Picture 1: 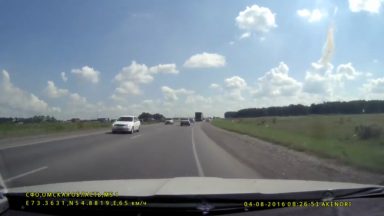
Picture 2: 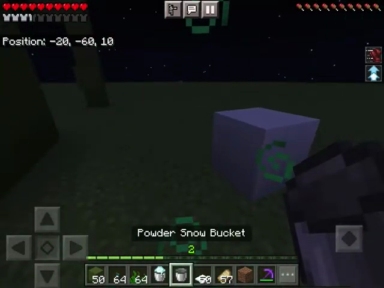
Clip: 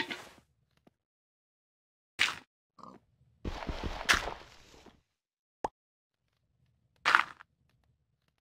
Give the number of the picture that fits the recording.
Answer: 2